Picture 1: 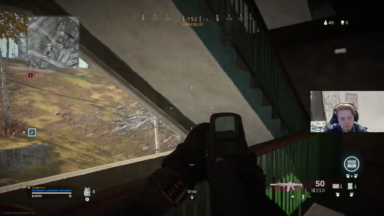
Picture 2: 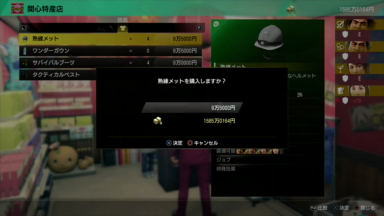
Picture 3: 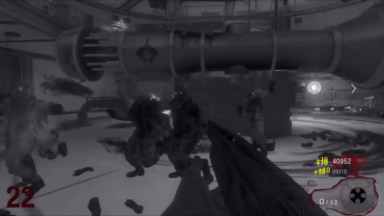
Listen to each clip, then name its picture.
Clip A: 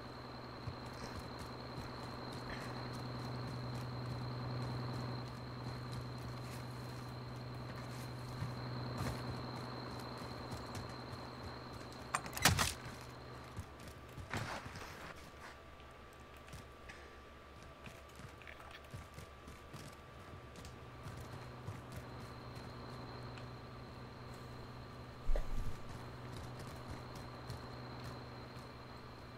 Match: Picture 1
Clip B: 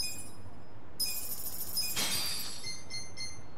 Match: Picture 2